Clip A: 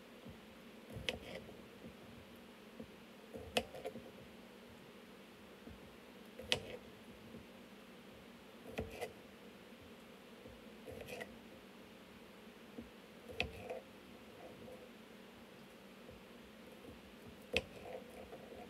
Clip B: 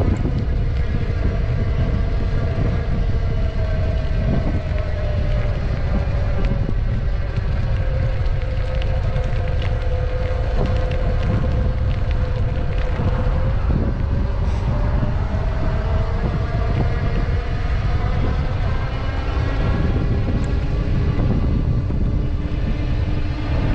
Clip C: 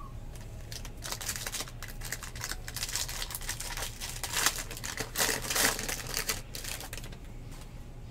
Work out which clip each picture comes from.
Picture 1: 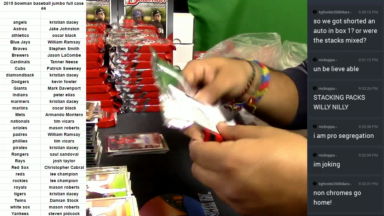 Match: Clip C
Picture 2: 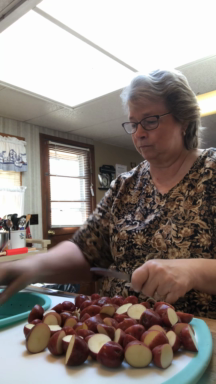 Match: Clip A